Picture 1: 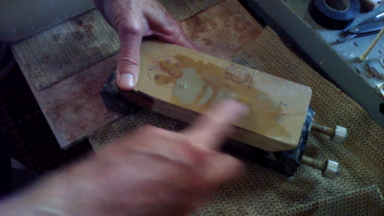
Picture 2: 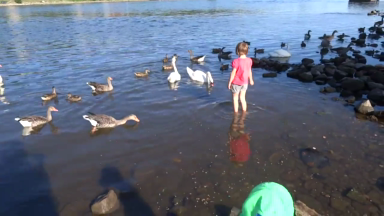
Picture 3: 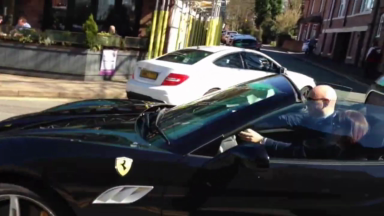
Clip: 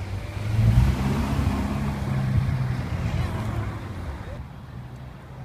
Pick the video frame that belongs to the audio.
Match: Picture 3